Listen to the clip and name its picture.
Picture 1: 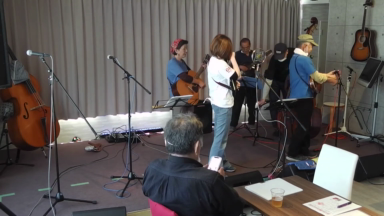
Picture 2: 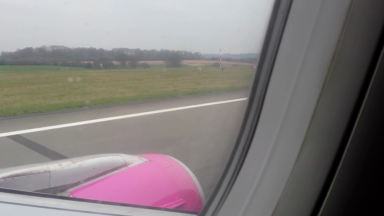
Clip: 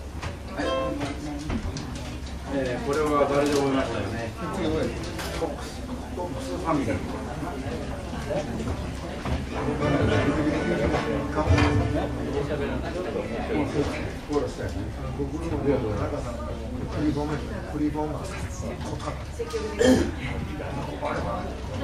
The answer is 1